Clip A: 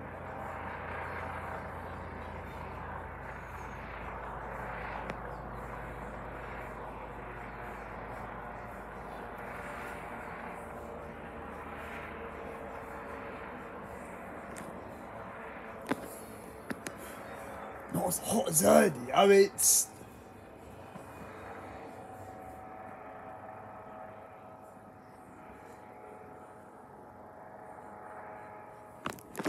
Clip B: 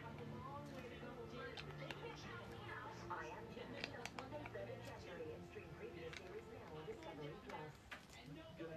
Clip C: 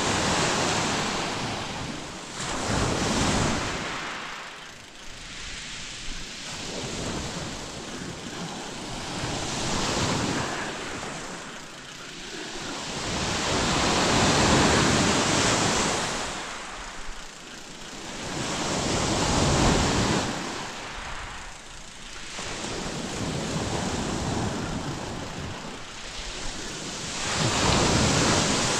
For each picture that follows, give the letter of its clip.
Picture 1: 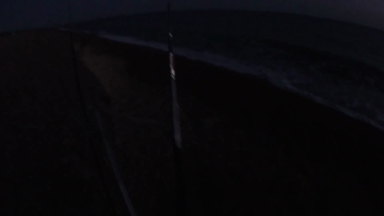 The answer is C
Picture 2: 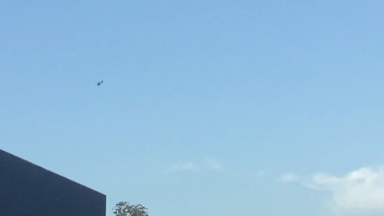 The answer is A